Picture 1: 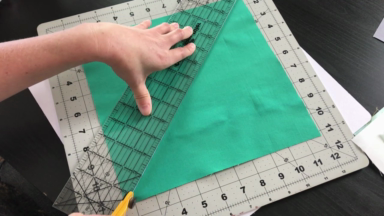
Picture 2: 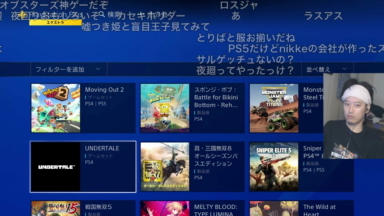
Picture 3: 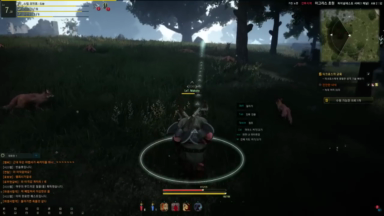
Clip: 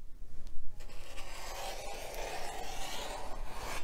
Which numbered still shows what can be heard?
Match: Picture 1